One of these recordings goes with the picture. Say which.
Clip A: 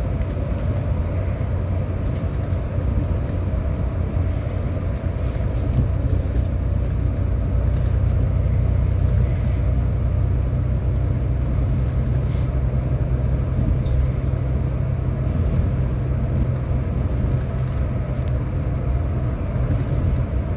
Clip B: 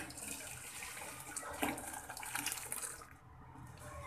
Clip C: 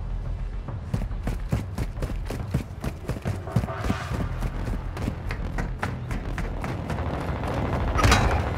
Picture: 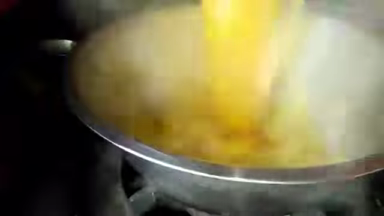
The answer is B